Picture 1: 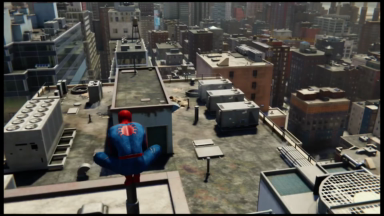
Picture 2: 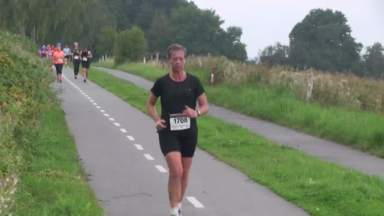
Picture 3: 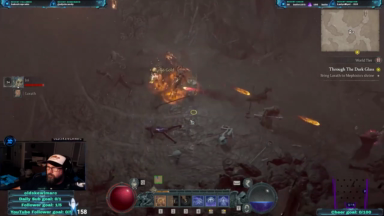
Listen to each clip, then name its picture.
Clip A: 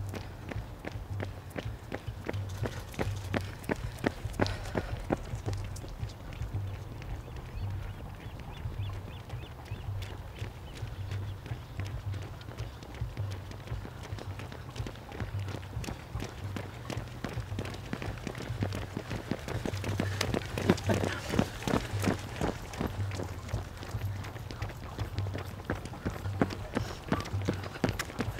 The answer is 2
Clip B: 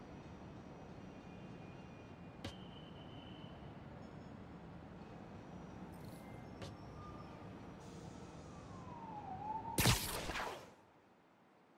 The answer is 1